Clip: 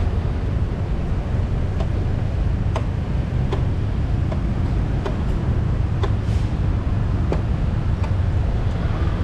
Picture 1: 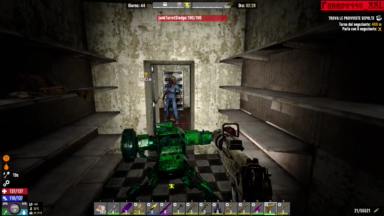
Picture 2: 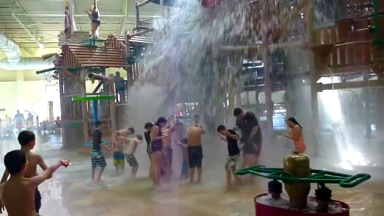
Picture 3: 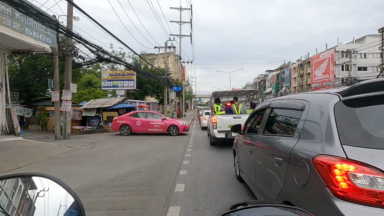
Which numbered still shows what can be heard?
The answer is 3